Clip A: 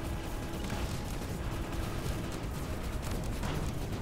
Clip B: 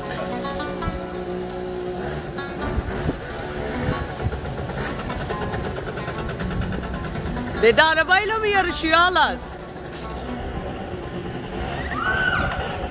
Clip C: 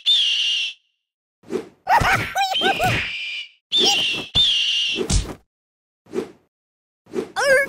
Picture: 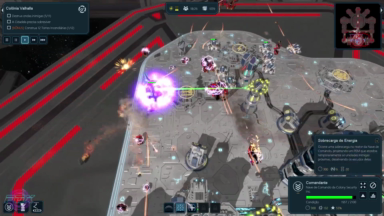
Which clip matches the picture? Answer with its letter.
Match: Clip A